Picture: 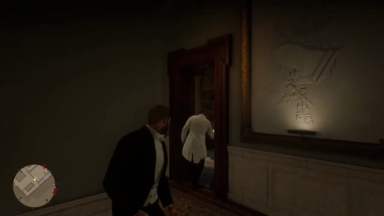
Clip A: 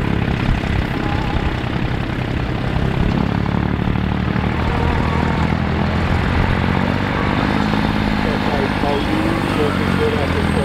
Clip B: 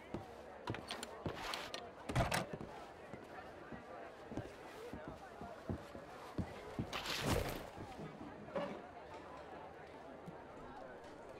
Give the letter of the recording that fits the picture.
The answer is B